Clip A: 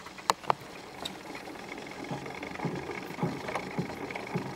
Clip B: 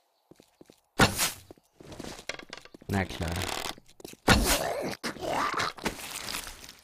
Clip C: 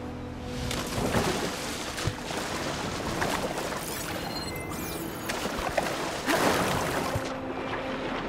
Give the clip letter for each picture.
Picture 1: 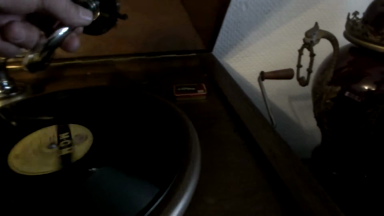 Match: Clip A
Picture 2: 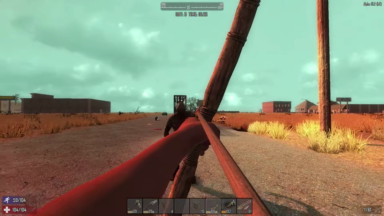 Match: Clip B